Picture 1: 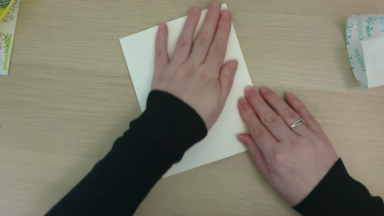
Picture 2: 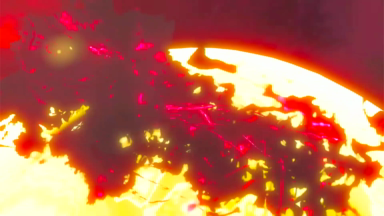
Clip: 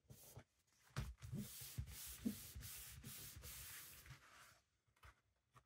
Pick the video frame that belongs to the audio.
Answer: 1